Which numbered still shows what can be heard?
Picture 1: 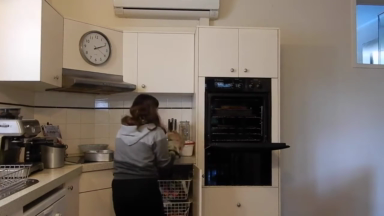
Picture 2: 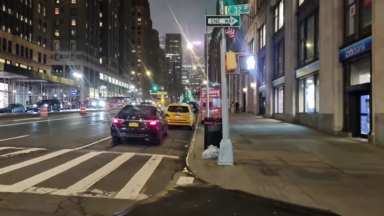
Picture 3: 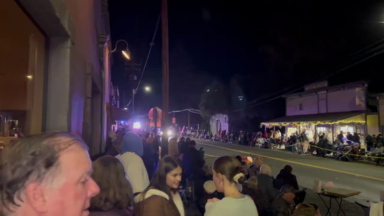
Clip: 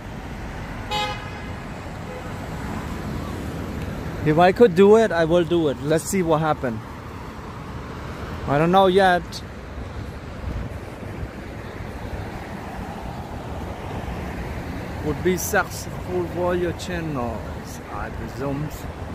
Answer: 2